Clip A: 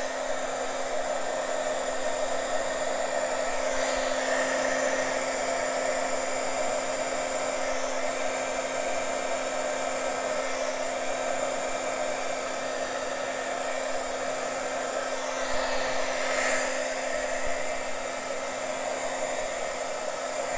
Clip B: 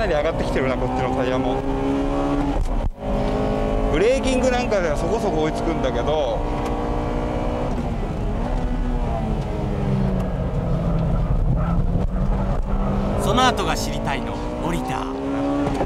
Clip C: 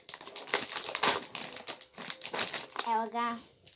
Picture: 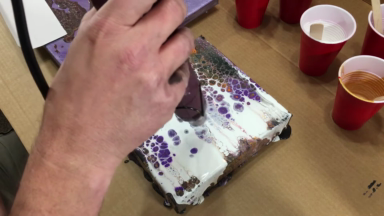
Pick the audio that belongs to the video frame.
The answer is A